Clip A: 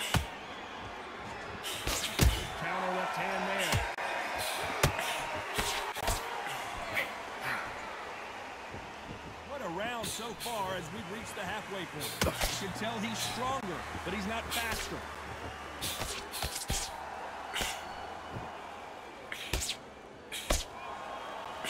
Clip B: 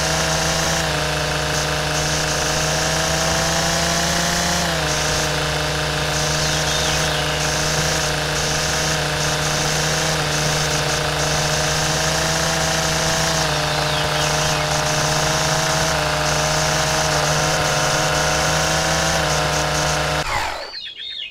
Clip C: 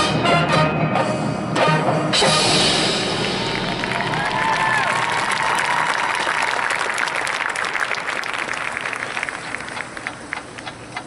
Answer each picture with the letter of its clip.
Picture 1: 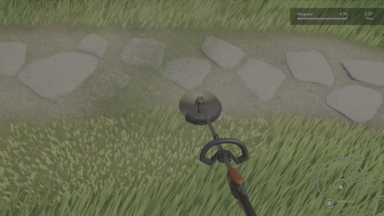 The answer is B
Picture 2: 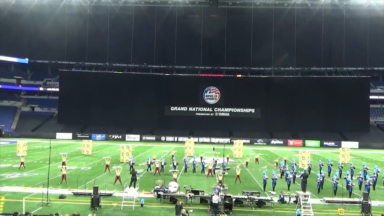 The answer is C